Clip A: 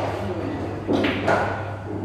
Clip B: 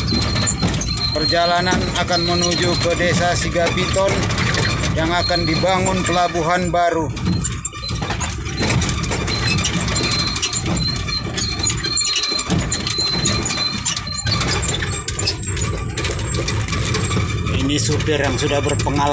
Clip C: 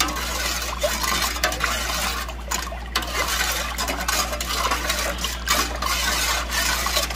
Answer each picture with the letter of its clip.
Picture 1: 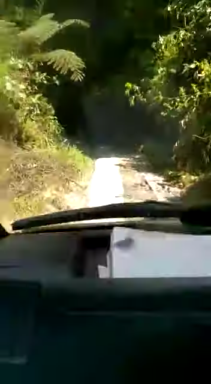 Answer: B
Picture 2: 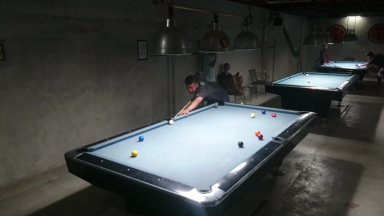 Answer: A